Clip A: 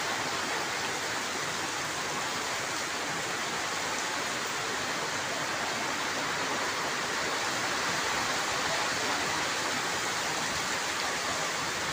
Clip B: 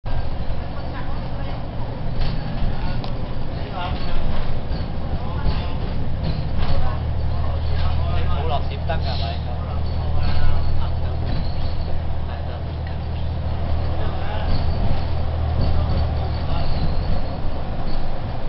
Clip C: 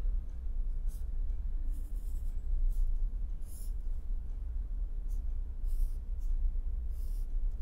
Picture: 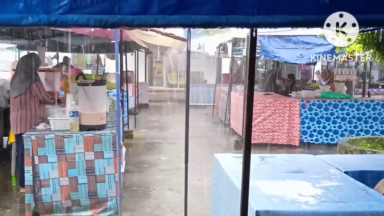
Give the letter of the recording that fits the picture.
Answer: A